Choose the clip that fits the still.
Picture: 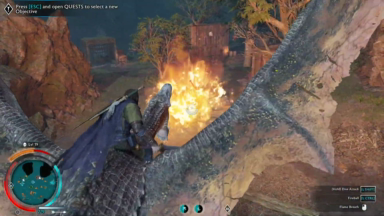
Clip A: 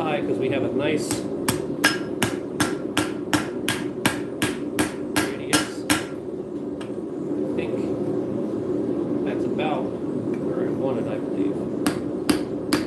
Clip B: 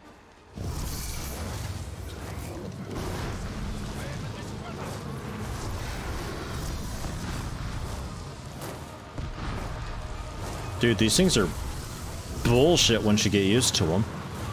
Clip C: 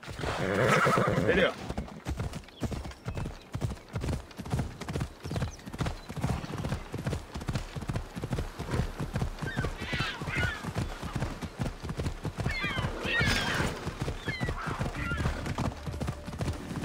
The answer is B